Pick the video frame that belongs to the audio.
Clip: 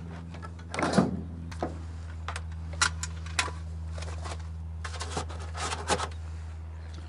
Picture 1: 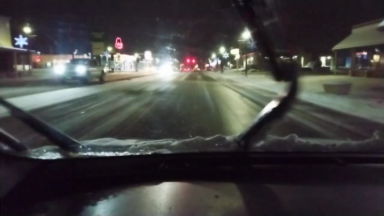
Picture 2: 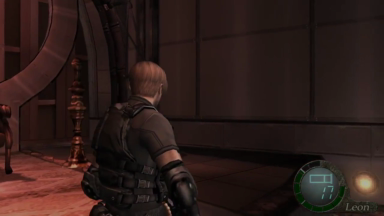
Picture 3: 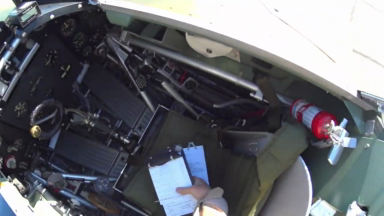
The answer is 3